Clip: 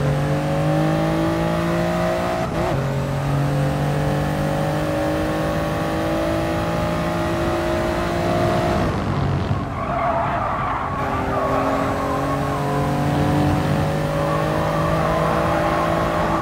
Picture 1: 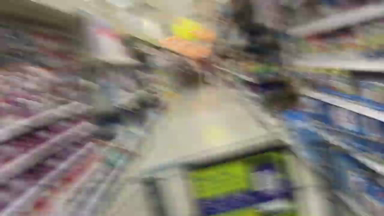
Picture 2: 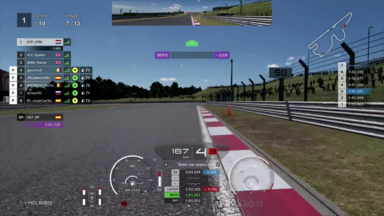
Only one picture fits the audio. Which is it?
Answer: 2